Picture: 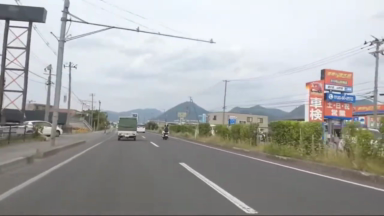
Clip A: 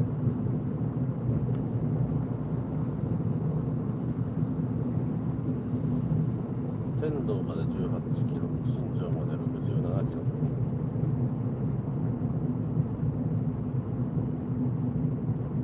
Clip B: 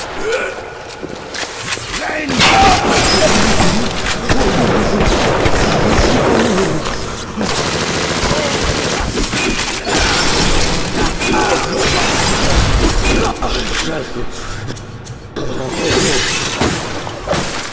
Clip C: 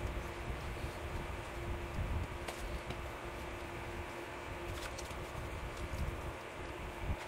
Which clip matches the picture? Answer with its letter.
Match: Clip A